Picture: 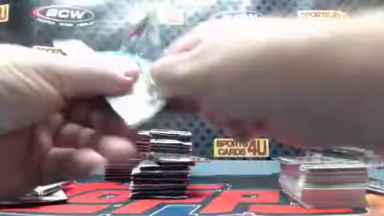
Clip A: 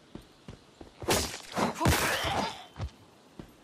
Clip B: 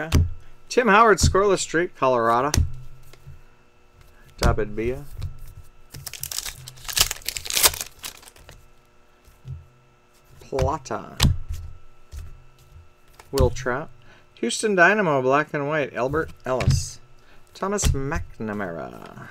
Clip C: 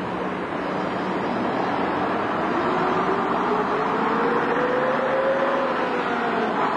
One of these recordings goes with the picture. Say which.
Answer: B